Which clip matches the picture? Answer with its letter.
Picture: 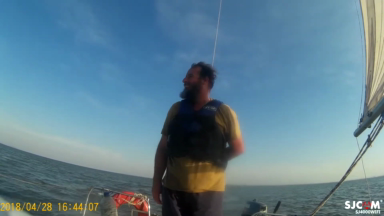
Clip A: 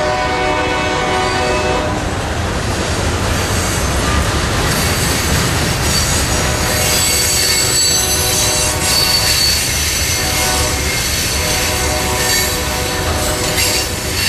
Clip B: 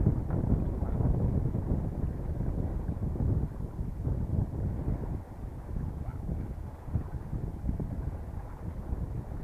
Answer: B